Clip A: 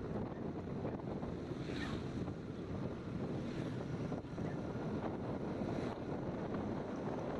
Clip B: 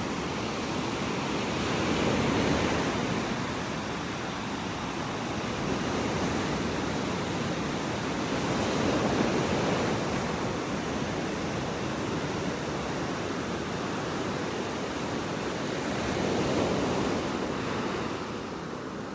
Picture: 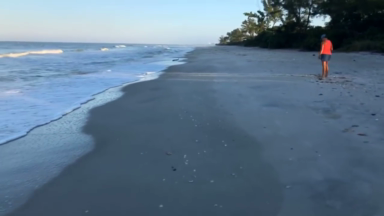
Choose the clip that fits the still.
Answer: B